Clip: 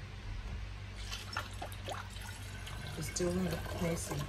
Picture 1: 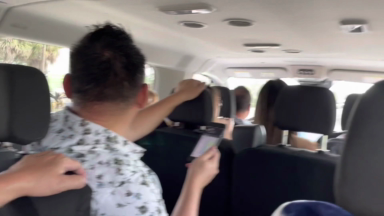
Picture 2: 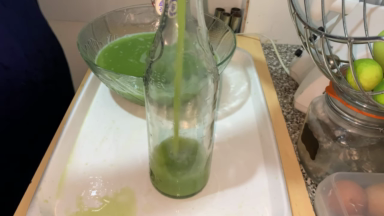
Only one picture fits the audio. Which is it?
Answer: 2